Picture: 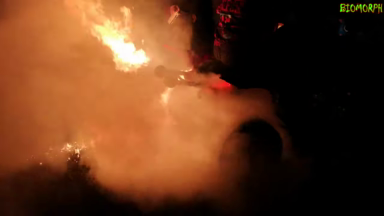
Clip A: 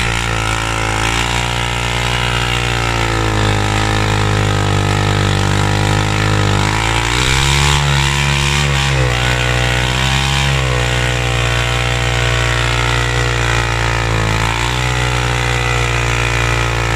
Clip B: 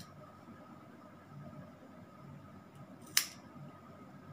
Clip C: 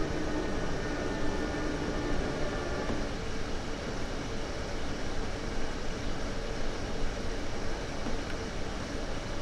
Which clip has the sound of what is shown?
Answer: A